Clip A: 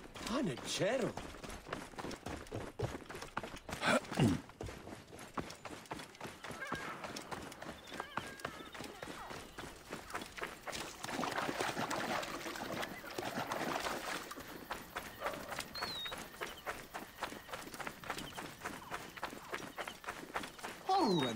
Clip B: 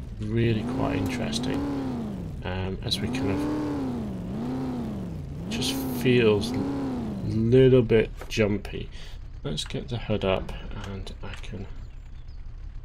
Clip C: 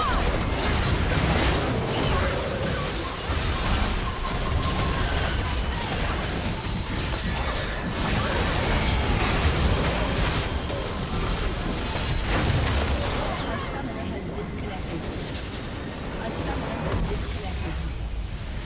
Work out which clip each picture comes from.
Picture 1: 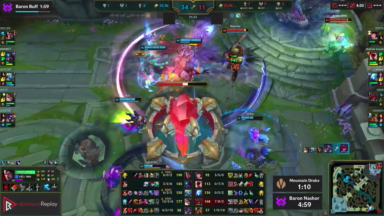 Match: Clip C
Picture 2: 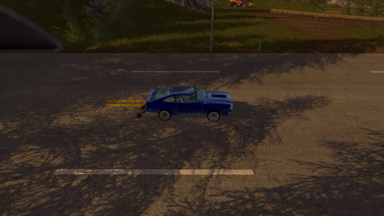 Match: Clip B